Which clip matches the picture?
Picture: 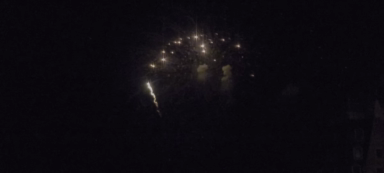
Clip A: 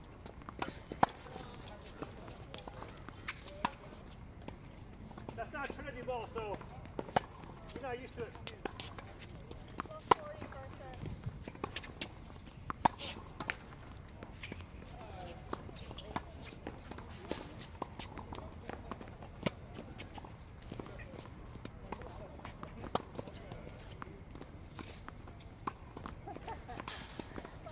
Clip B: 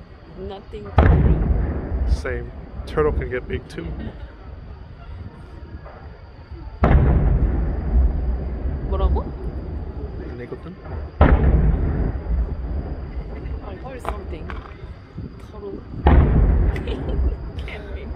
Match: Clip B